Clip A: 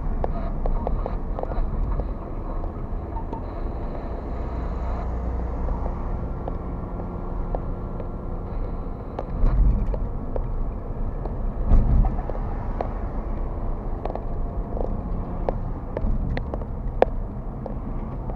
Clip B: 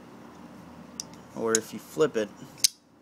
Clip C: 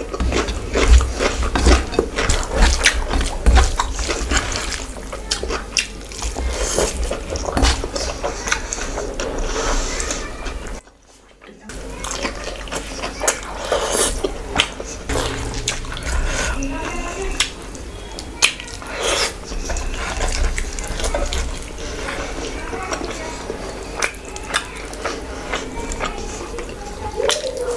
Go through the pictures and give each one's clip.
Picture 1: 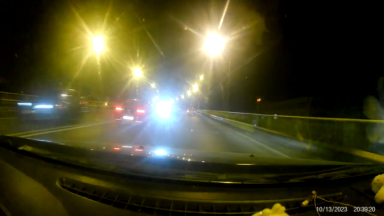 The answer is A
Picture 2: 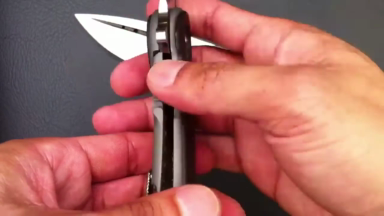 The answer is B